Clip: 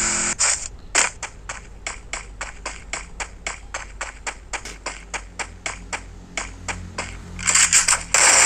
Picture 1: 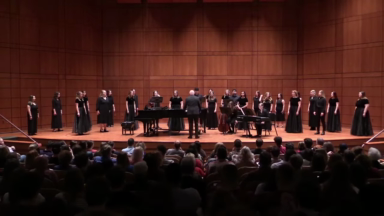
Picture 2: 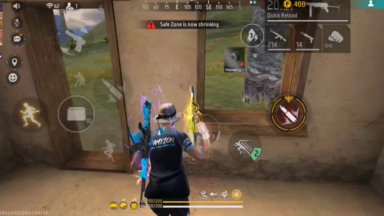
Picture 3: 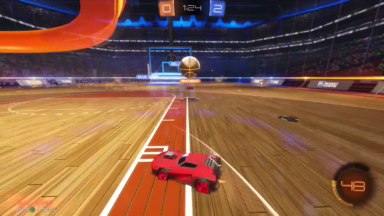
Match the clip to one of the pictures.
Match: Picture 2